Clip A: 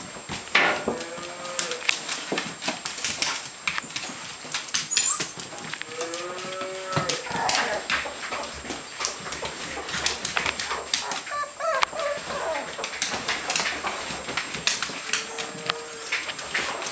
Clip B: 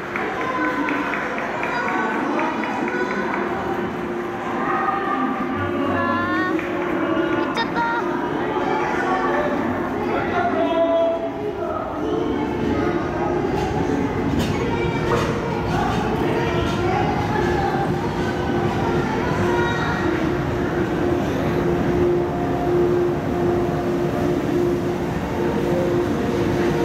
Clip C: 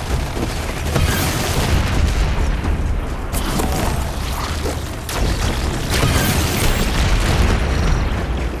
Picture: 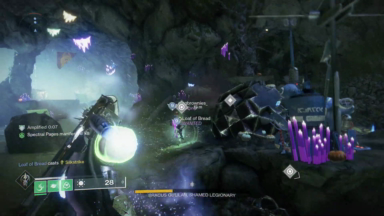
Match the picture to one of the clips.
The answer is C